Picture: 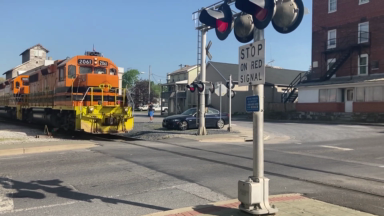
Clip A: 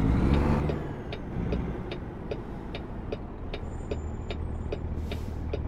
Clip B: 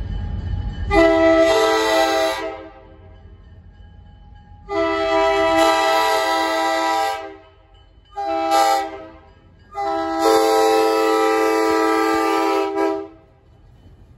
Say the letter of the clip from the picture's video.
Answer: B